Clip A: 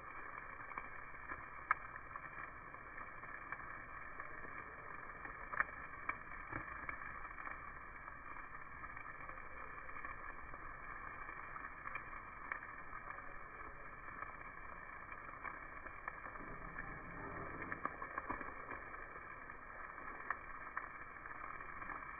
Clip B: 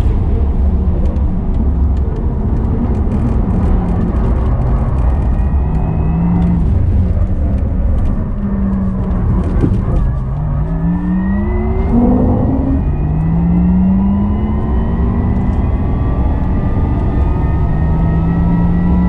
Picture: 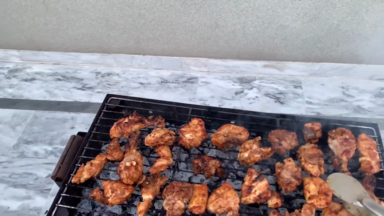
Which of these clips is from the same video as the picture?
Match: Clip A